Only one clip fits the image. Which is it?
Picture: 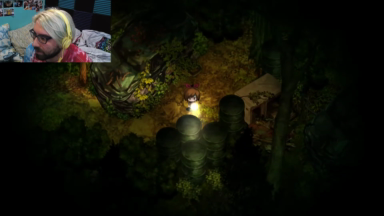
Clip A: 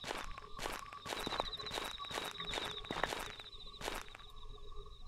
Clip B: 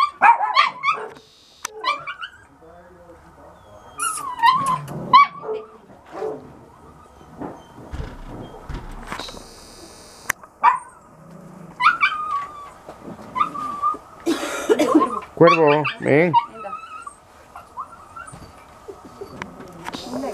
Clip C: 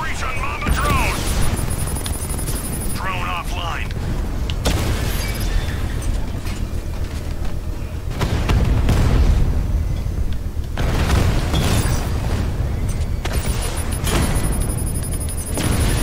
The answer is A